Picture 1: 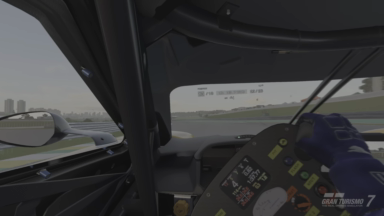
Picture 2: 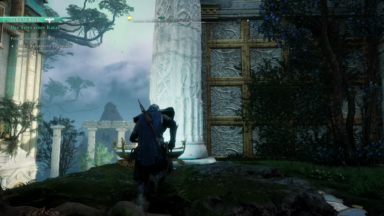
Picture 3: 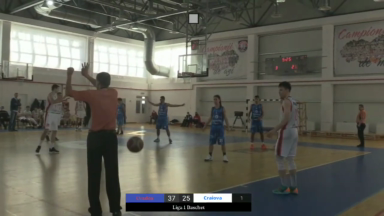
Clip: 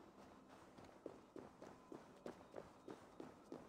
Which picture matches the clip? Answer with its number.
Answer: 2